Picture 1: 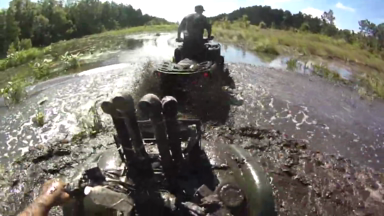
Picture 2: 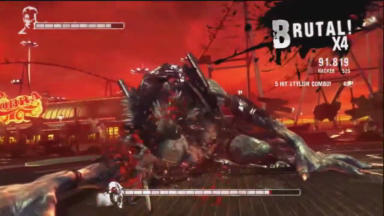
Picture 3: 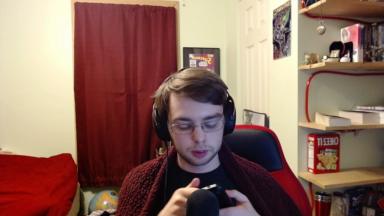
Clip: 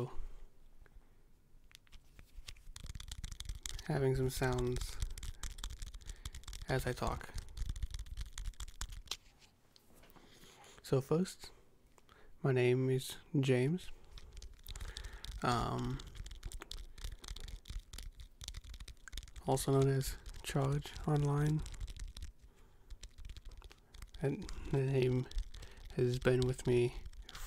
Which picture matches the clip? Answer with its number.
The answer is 3